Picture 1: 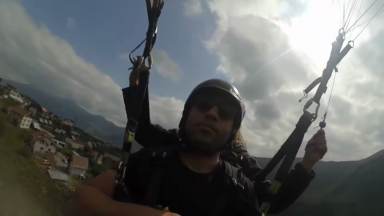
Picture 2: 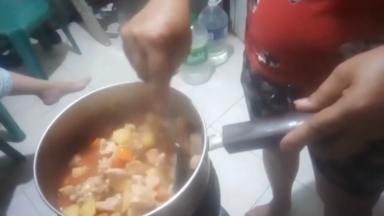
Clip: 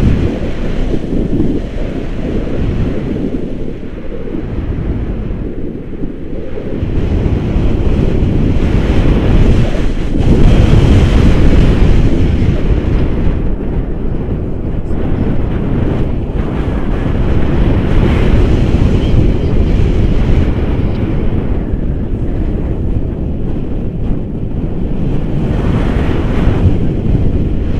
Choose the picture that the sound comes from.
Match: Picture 1